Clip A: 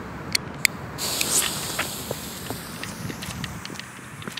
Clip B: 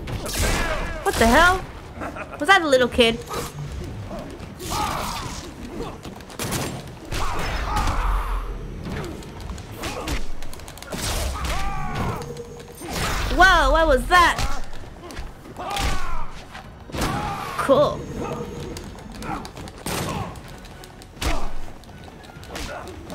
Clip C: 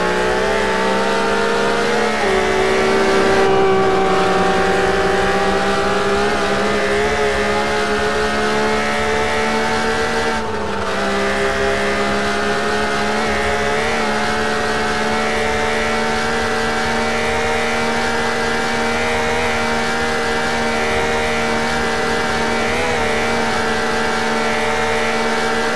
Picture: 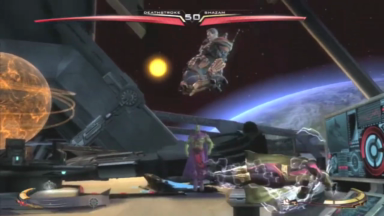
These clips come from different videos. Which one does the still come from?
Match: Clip B